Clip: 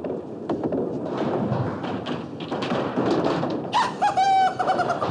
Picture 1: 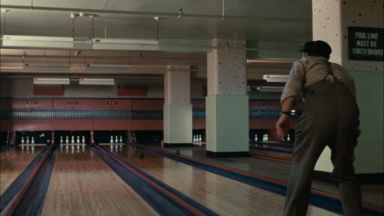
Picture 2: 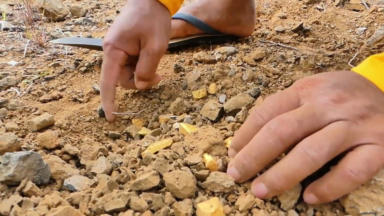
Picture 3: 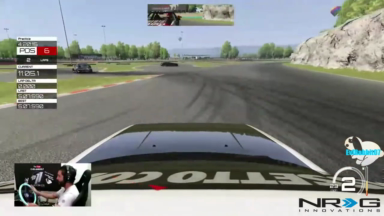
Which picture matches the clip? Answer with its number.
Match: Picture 1